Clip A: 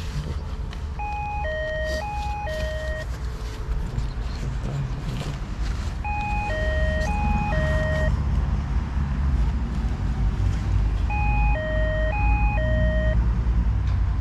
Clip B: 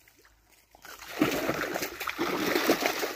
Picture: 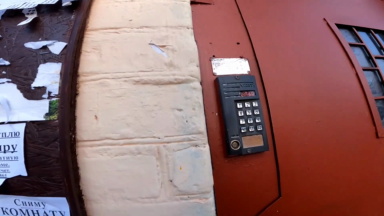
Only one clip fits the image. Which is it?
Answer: A